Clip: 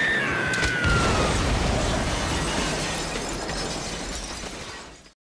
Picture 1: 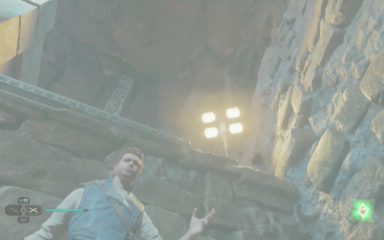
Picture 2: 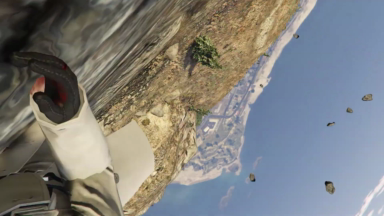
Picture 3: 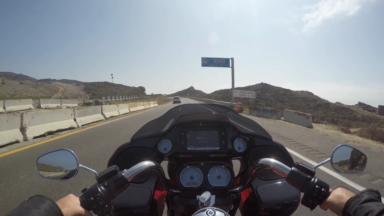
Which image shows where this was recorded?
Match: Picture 2